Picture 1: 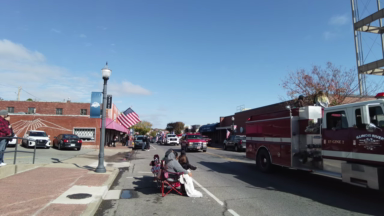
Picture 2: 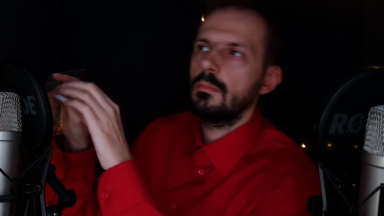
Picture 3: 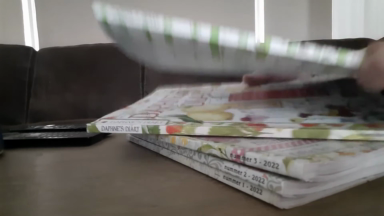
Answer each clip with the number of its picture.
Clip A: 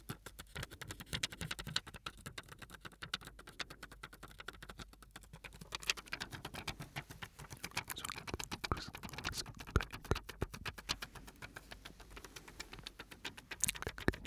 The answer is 2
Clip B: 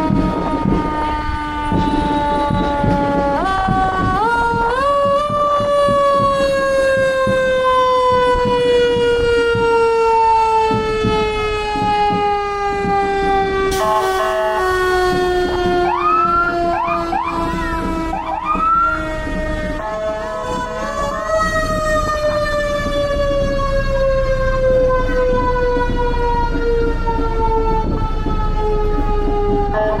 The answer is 1